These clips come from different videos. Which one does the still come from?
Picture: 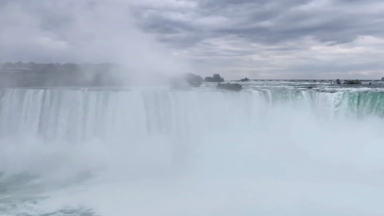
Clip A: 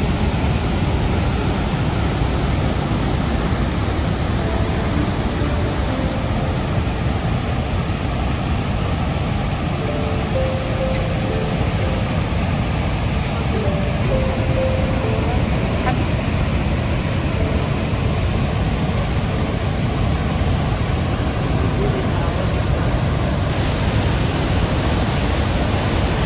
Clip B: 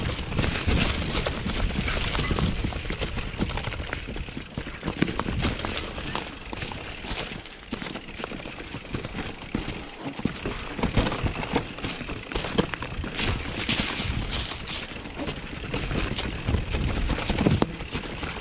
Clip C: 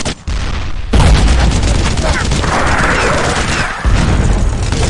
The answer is A